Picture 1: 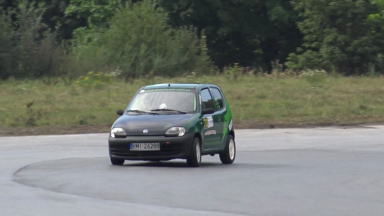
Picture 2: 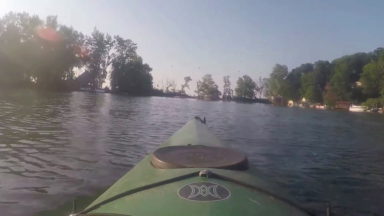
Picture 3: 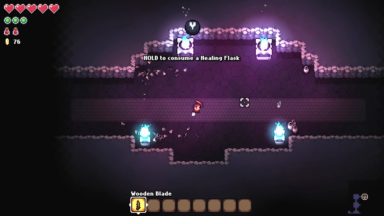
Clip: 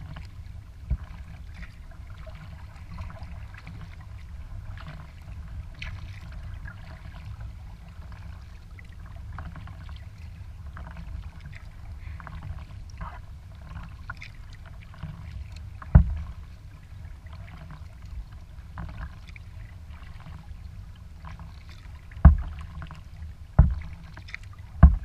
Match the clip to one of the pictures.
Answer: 2